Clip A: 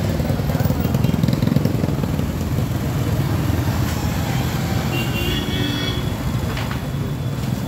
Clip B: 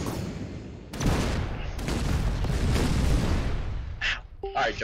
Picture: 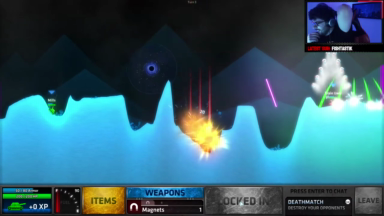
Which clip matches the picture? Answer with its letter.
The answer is B